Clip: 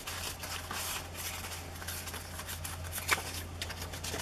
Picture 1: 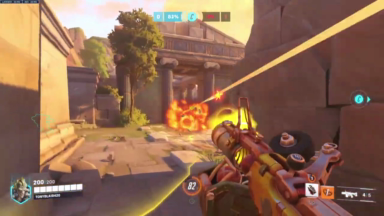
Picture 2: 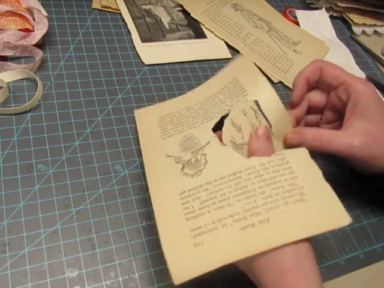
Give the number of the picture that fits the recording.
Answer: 2